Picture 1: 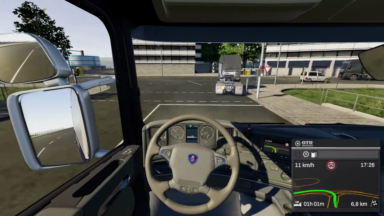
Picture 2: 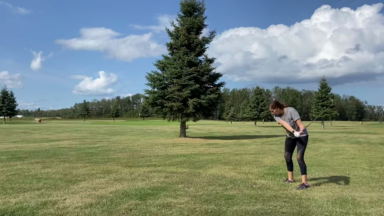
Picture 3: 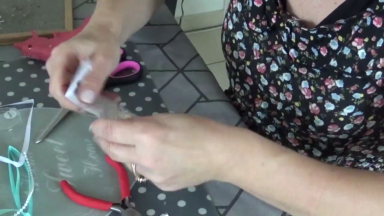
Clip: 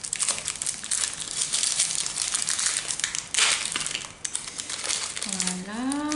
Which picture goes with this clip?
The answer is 3